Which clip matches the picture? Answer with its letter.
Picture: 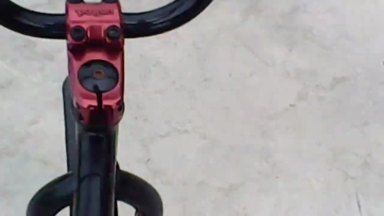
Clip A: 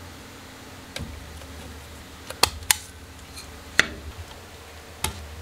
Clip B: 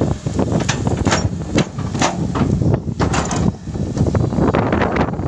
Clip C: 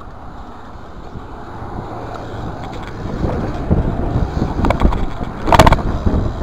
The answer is C